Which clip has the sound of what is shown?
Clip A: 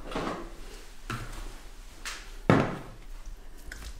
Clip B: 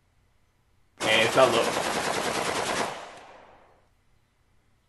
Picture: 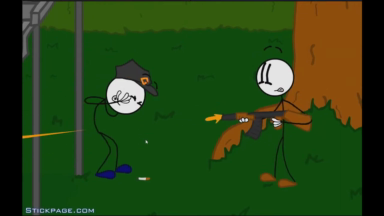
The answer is B